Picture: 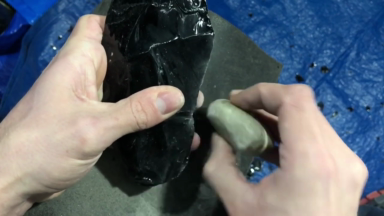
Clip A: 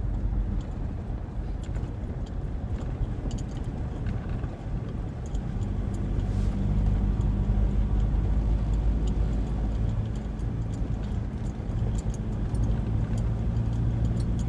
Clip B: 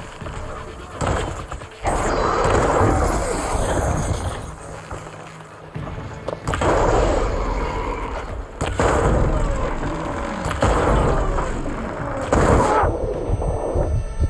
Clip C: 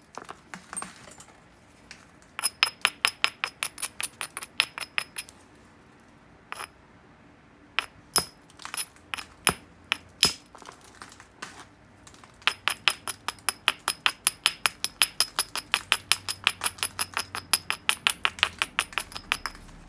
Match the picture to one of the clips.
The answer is C